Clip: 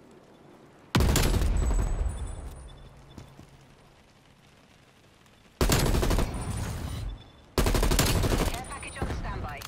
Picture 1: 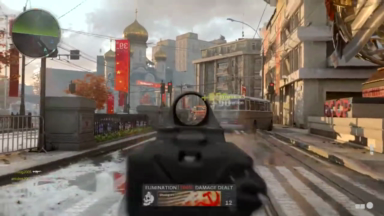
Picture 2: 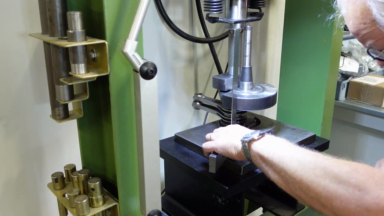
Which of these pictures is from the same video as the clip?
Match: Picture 1